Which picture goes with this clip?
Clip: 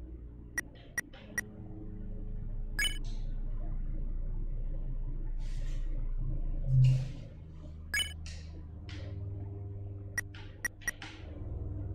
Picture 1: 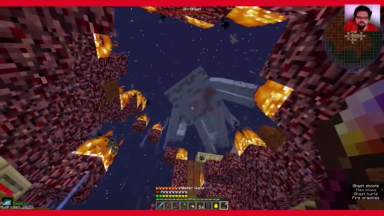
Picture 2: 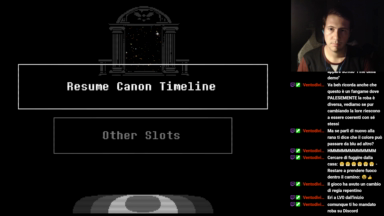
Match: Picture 2